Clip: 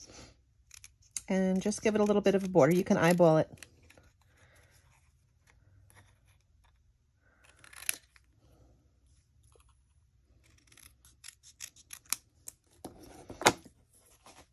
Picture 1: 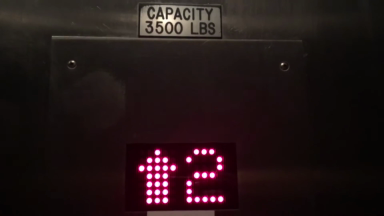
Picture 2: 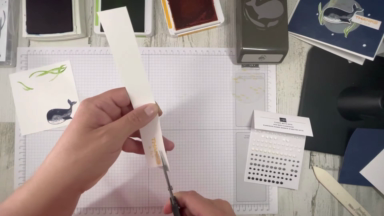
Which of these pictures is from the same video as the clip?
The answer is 2